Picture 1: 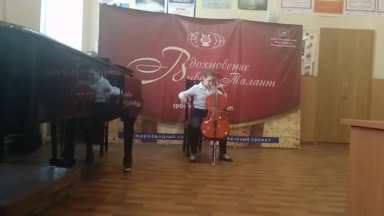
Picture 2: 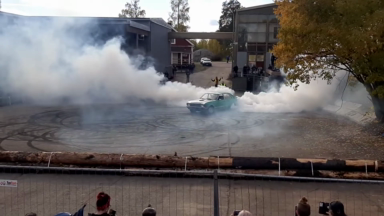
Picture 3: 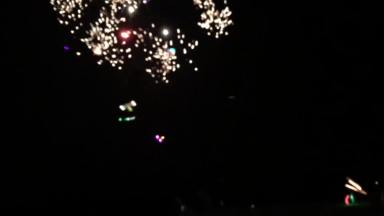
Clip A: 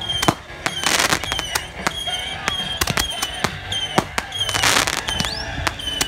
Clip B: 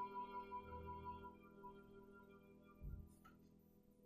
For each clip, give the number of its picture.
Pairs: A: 3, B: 1